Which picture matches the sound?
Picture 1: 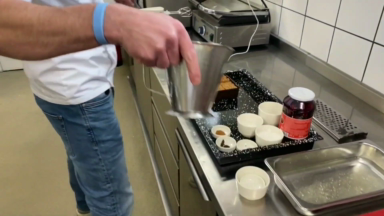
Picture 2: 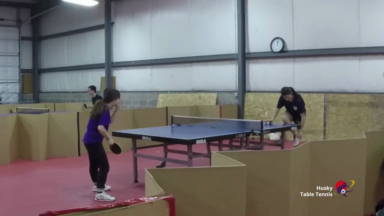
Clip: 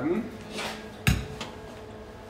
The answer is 1